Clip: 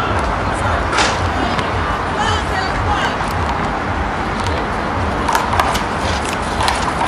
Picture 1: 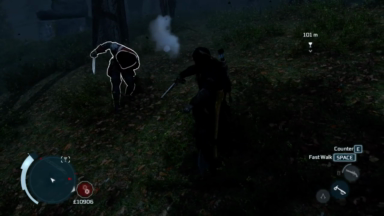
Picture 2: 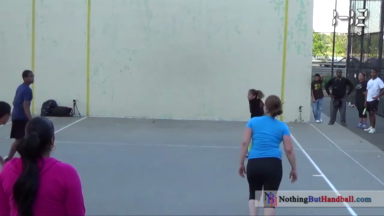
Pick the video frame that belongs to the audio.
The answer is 2